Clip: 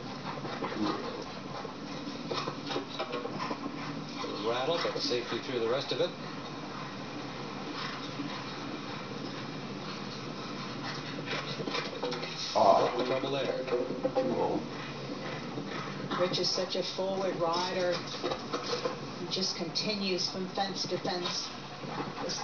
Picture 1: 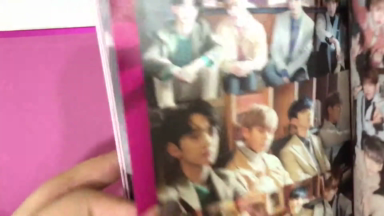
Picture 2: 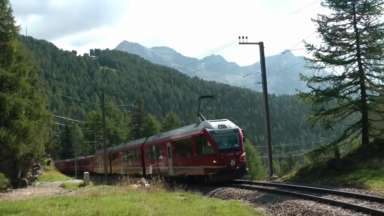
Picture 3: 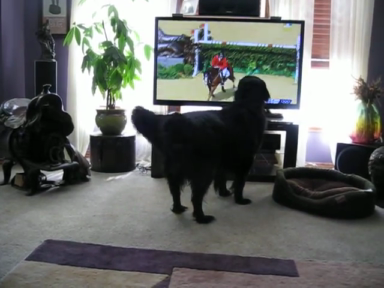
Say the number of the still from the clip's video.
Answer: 3